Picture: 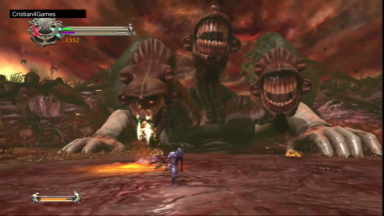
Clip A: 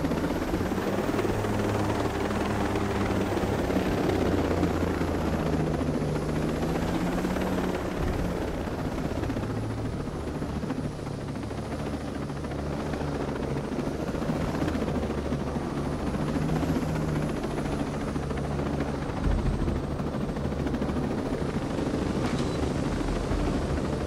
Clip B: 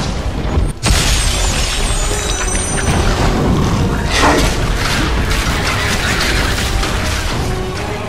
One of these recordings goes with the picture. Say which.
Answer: B